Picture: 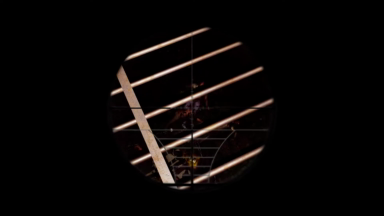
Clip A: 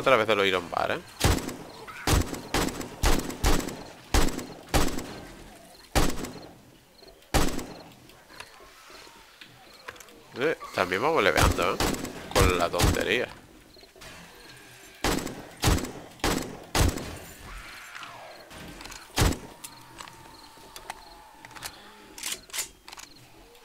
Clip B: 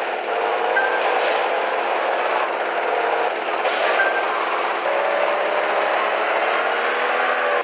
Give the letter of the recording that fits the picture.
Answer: A